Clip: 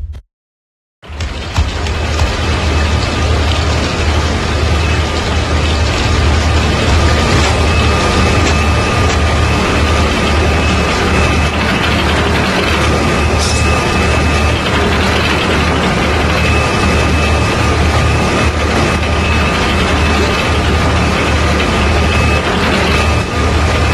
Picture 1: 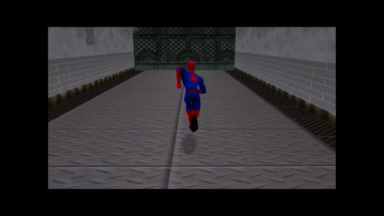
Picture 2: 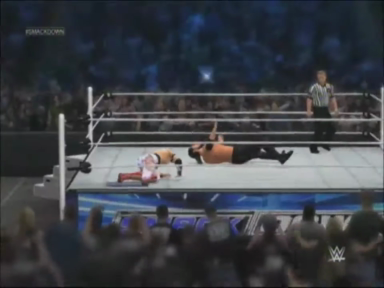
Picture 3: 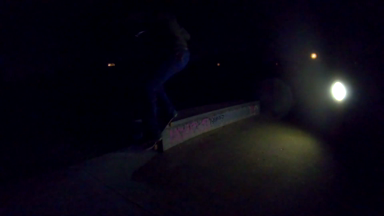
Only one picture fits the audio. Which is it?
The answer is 1